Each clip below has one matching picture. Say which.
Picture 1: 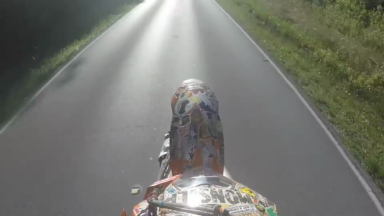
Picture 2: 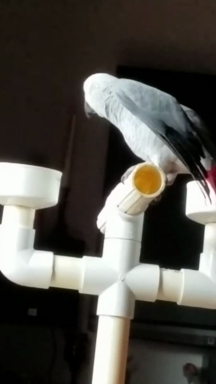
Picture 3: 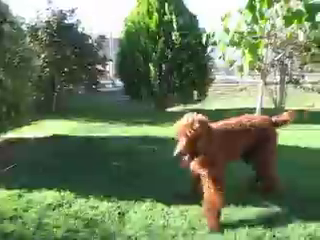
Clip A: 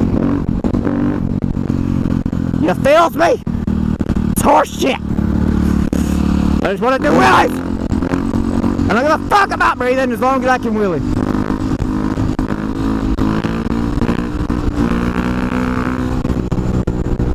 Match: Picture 1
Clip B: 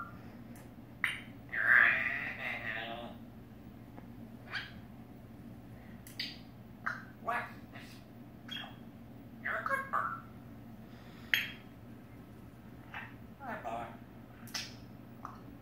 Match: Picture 2